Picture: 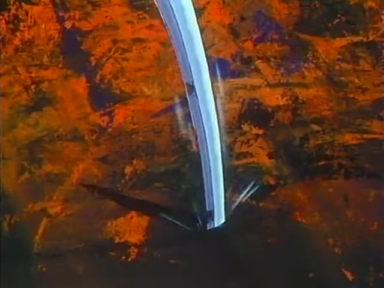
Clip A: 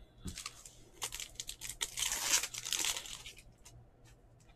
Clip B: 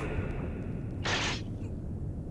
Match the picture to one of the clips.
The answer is B